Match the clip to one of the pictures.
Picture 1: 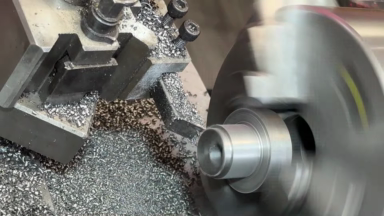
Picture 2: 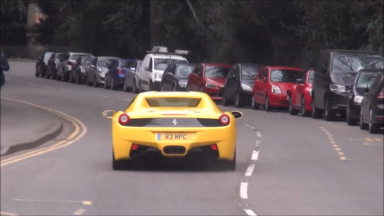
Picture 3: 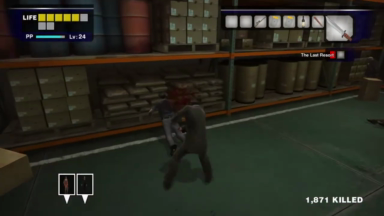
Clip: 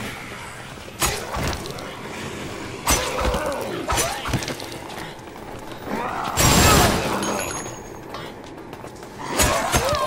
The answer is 3